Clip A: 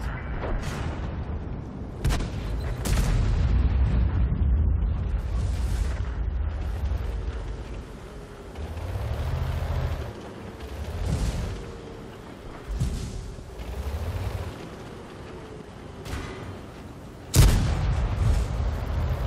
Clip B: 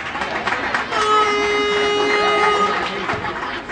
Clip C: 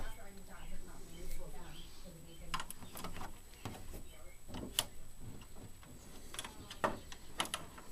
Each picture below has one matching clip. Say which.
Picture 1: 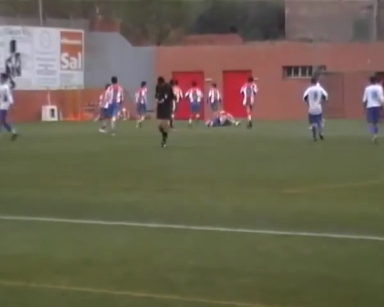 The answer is B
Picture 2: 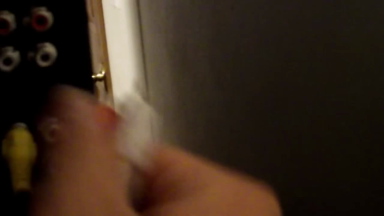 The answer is C